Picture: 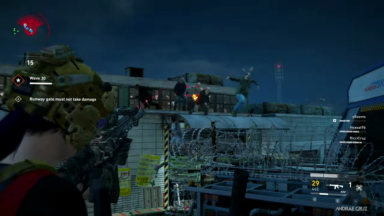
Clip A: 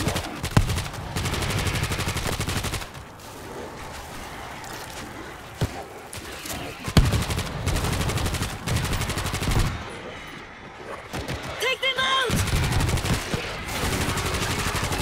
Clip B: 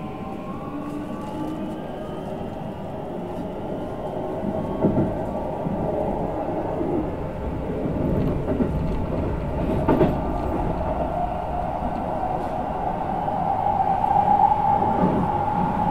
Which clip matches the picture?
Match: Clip A